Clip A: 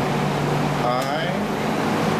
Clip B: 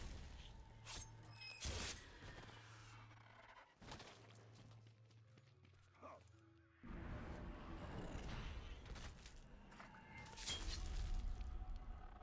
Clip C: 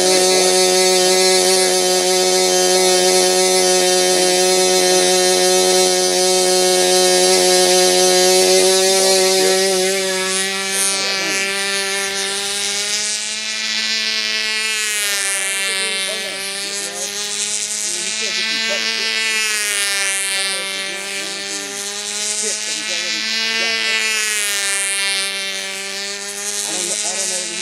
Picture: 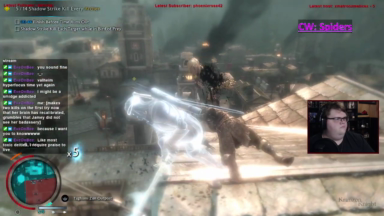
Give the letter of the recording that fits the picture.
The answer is B